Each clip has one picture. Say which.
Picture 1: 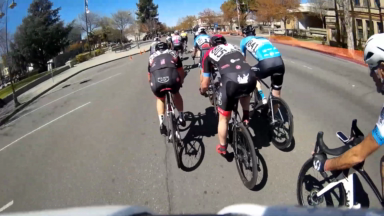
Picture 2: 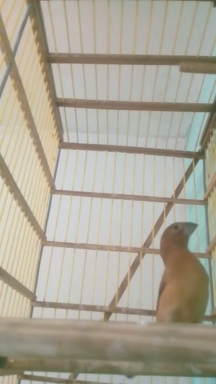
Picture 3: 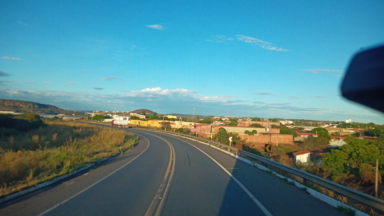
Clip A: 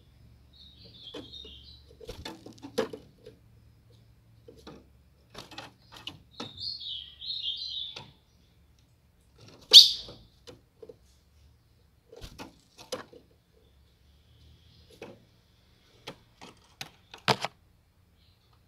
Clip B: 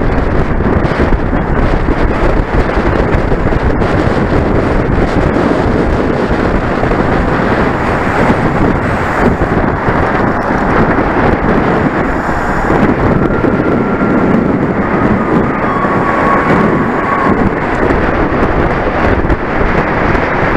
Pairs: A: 2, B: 1